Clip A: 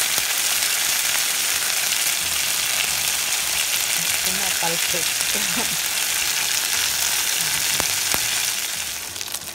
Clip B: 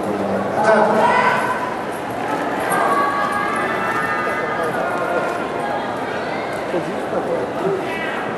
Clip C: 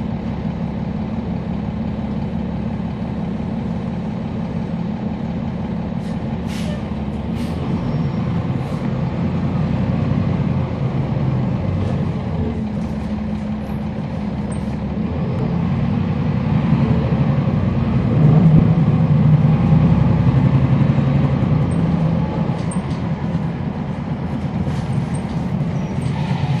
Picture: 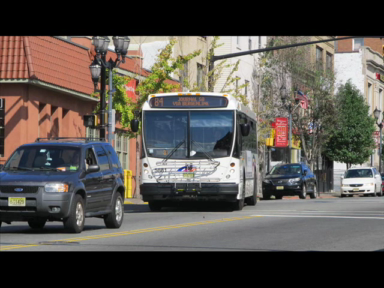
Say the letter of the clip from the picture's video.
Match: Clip C